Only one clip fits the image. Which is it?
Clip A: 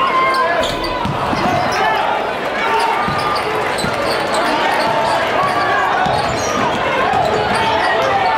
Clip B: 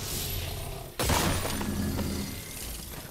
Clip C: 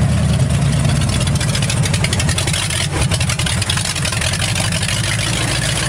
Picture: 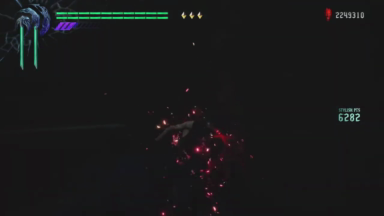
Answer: B